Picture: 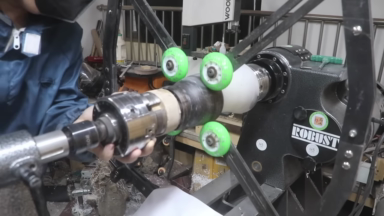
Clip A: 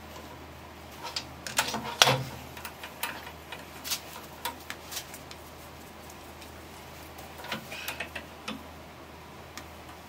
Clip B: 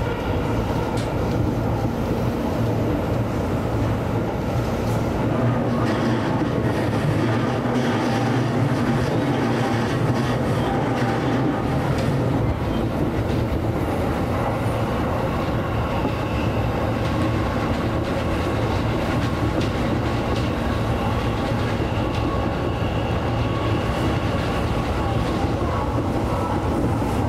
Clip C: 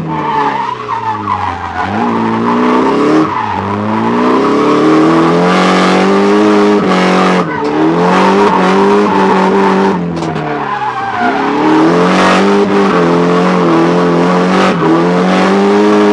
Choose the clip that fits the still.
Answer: A